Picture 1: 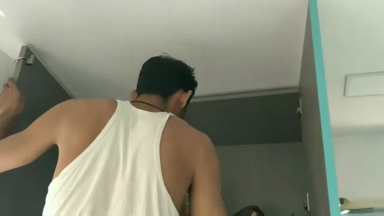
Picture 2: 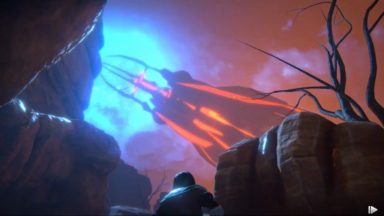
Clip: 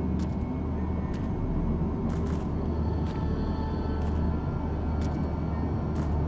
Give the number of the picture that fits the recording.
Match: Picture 2